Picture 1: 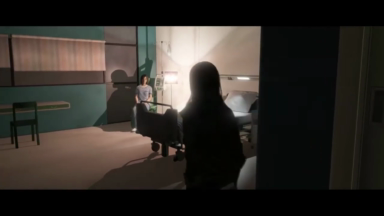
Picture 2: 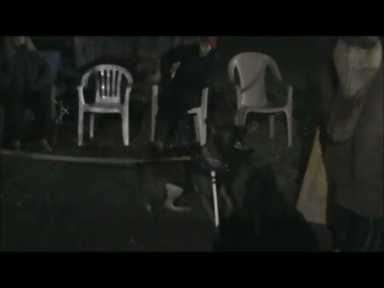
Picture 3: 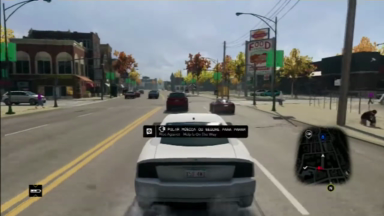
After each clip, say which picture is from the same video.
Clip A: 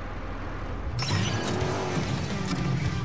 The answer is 3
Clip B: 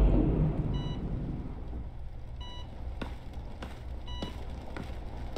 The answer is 1